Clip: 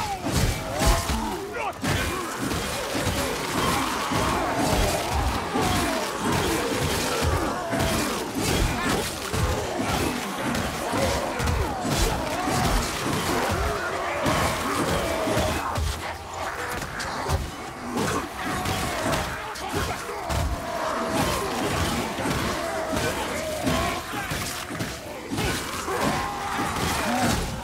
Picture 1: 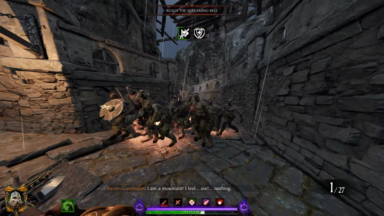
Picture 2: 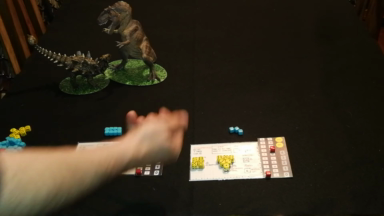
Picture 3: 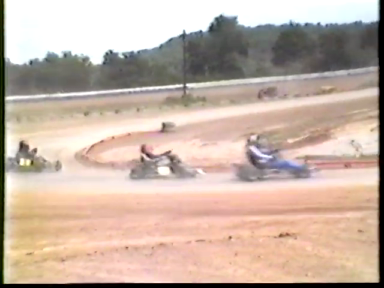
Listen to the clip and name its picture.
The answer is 1